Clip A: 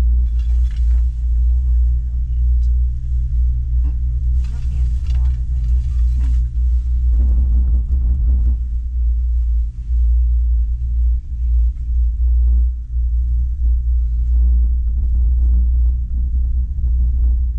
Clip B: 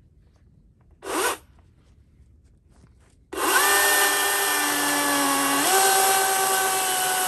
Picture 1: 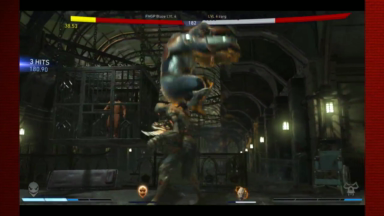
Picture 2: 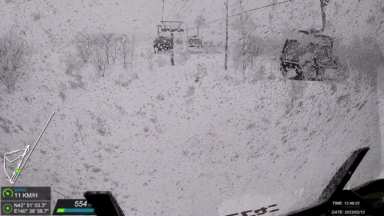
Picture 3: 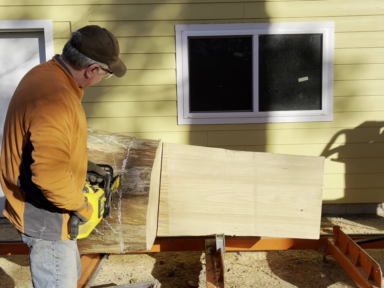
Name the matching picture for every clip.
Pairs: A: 2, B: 3